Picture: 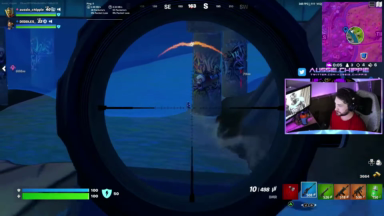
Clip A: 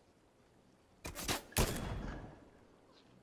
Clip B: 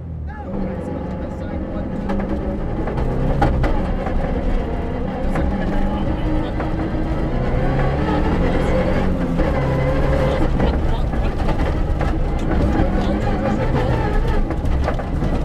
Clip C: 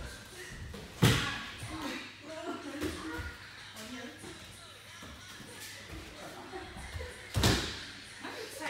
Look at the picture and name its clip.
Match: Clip A